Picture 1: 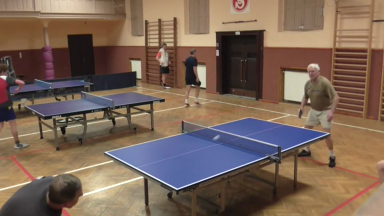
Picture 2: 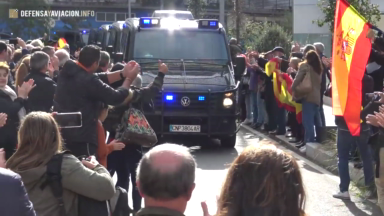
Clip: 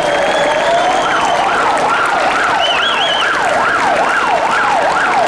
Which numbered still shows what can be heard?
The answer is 2